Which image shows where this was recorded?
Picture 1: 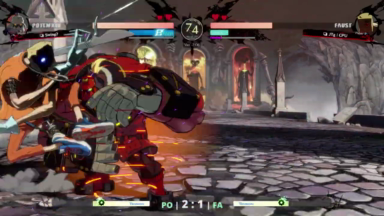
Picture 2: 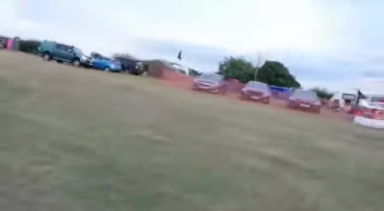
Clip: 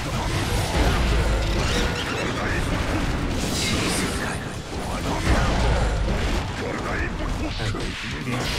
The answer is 1